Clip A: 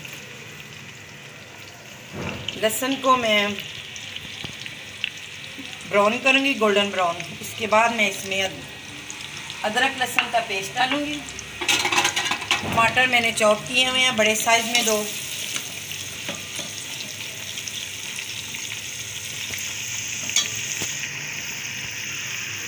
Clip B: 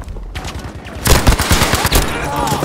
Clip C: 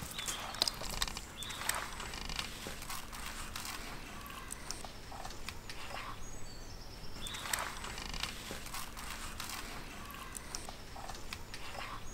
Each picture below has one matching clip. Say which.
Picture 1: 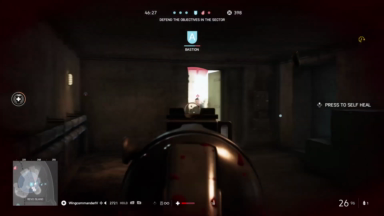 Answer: B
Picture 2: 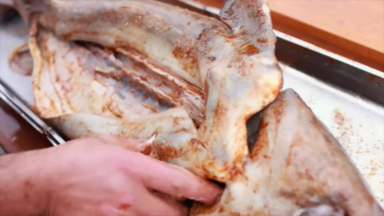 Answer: C